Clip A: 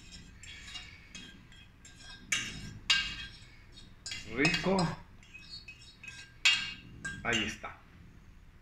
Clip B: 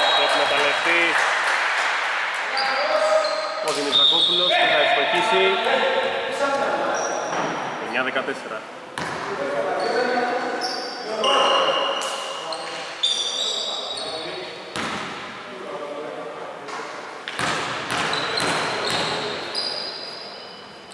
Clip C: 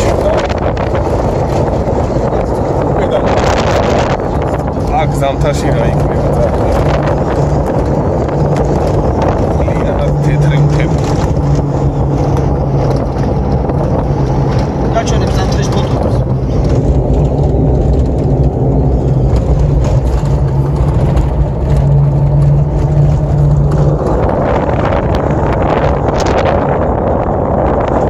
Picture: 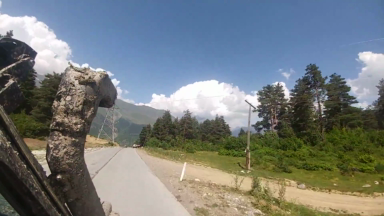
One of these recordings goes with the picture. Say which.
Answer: C